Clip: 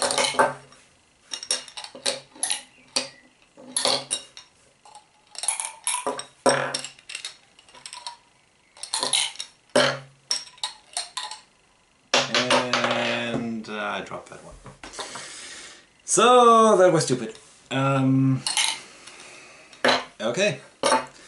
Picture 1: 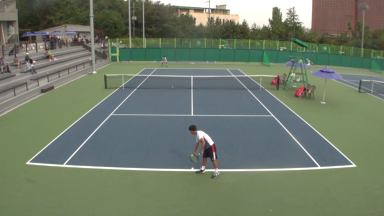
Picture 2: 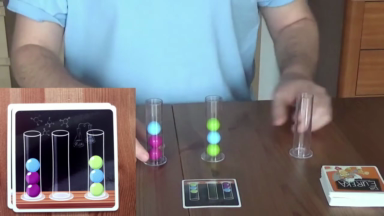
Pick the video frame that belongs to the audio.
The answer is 2